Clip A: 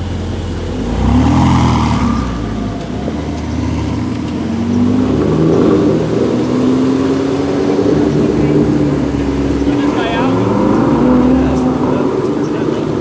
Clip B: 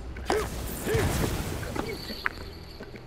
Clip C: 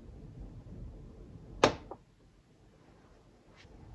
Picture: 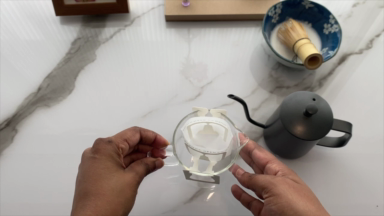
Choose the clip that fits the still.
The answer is C